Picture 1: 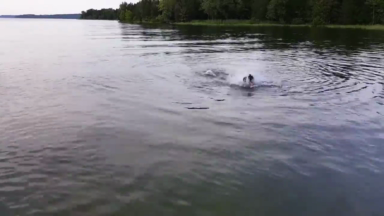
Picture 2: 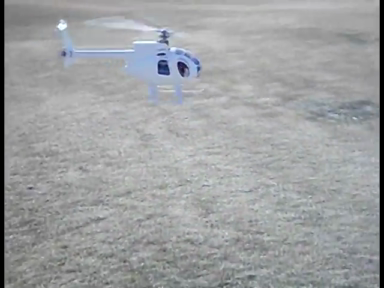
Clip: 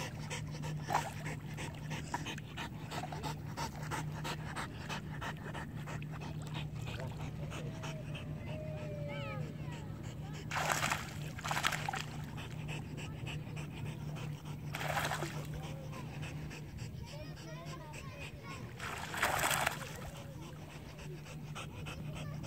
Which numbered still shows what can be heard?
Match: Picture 1